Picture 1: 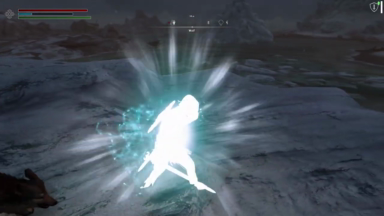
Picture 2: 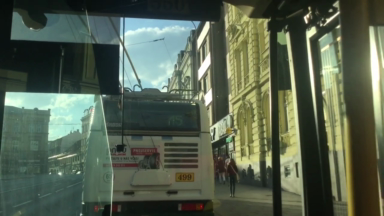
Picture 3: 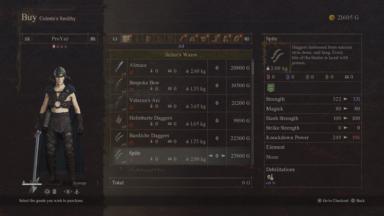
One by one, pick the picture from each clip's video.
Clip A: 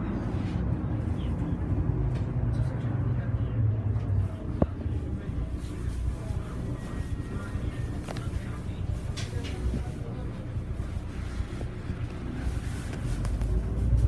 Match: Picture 2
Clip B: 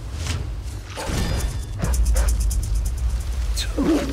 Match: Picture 1